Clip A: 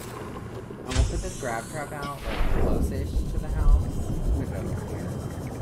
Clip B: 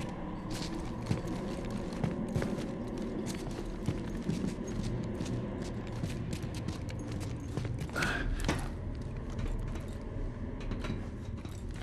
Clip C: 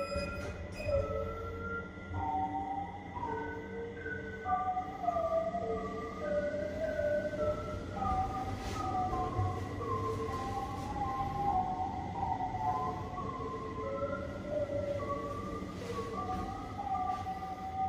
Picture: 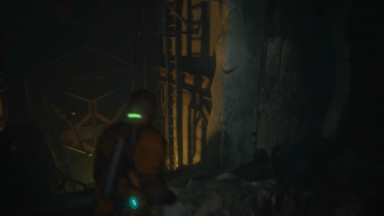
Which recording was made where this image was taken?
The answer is B